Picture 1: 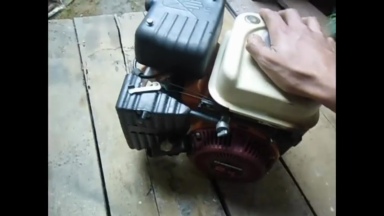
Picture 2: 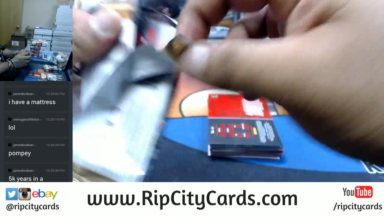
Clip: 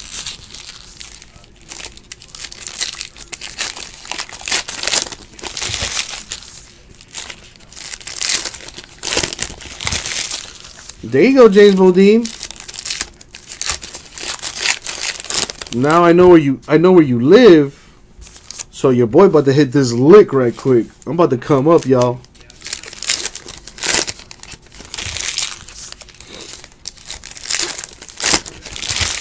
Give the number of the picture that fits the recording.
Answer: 2